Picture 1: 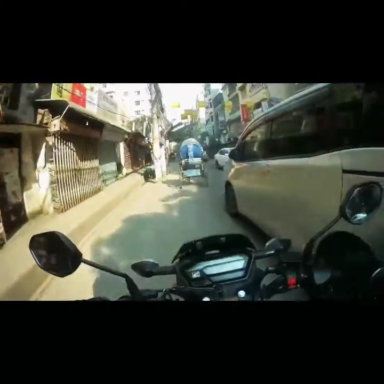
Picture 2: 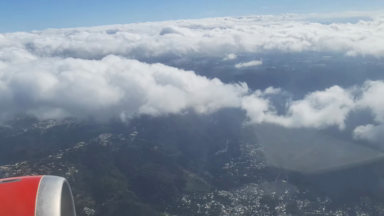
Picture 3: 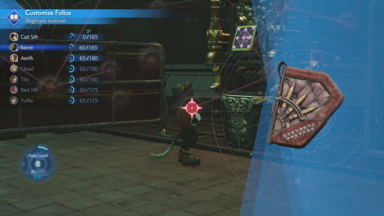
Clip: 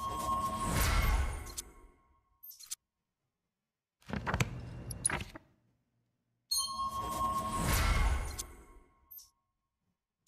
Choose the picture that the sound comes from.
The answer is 3